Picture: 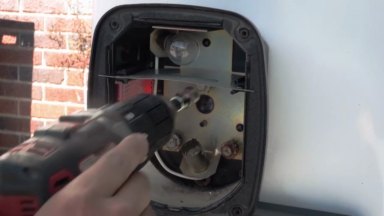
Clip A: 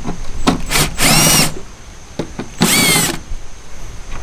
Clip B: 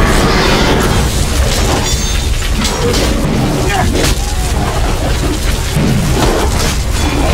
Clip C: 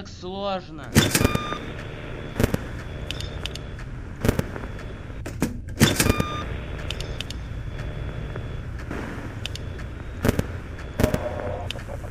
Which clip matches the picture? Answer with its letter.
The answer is A